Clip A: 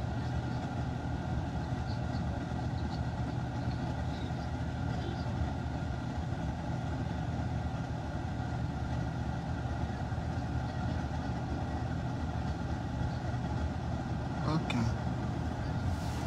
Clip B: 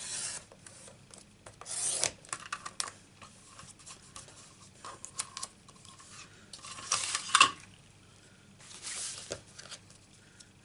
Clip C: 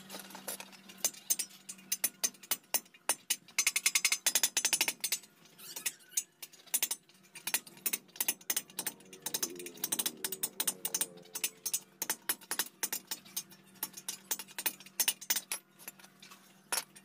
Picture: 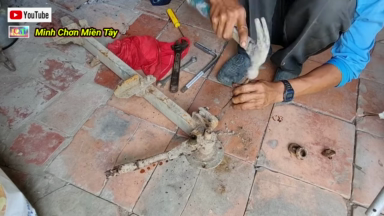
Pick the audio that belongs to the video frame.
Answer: C